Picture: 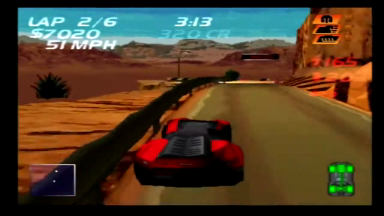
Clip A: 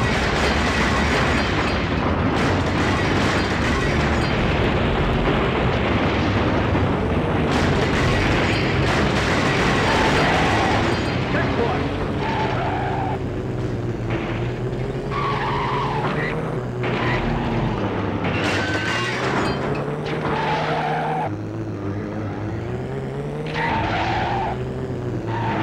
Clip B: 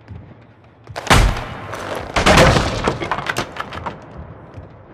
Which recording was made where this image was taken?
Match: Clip A